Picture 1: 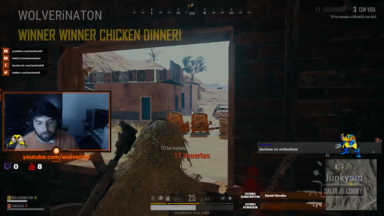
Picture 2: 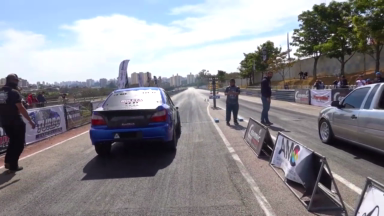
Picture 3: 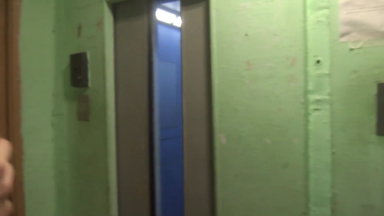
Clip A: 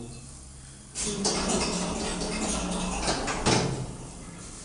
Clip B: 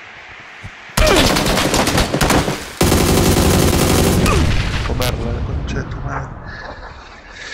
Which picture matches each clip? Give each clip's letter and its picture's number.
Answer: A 3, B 1